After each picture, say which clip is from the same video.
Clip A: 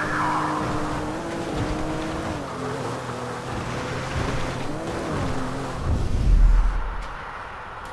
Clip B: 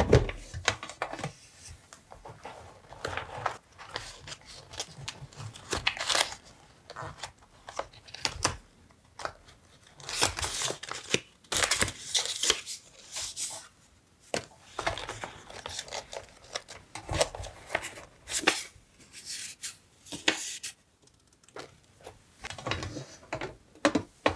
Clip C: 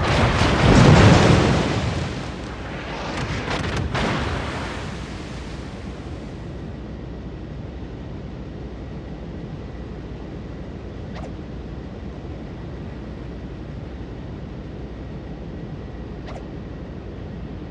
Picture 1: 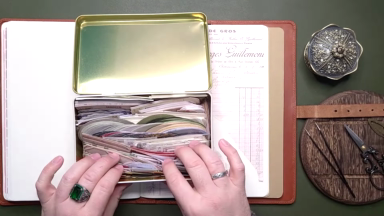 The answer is B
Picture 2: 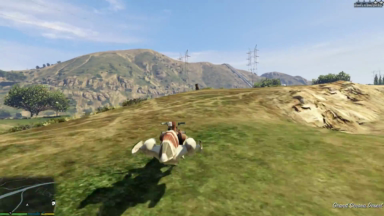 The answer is A